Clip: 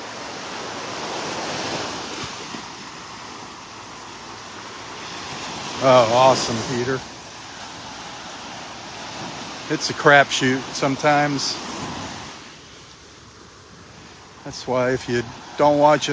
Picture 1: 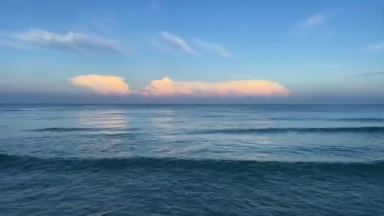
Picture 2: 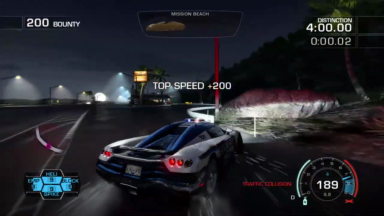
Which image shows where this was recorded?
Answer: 1